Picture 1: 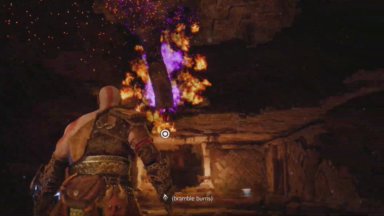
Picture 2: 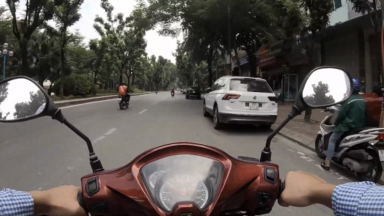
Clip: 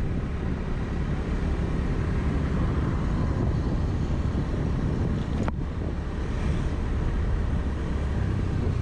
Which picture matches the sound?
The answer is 2